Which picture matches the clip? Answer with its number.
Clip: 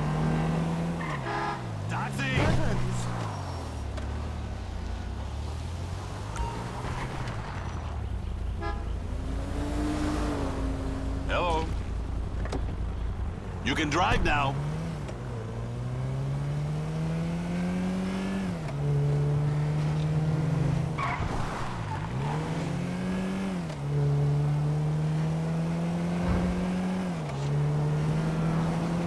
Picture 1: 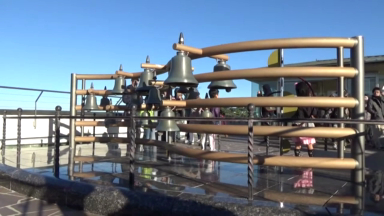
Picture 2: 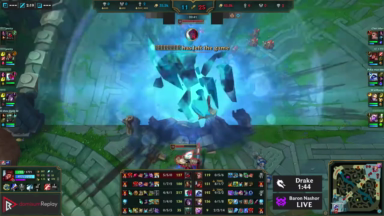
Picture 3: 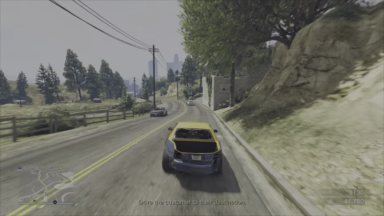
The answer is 3